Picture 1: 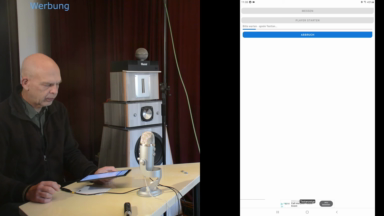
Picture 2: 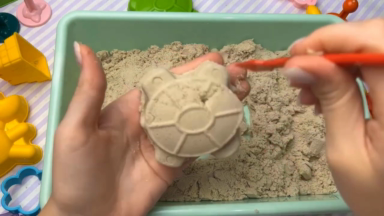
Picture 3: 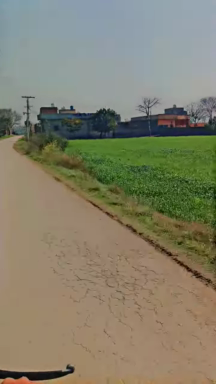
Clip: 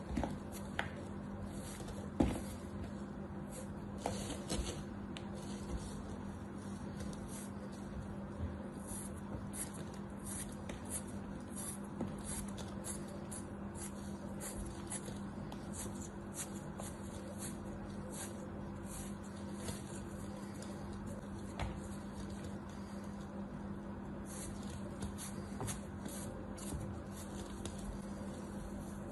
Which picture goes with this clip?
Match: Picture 2